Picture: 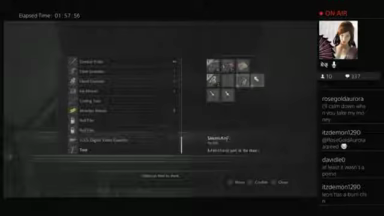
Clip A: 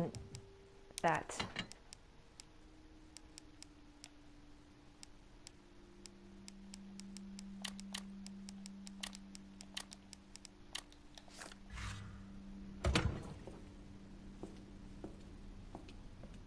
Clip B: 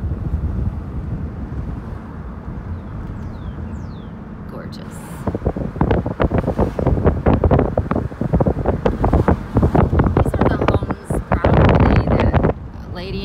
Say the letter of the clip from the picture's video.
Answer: A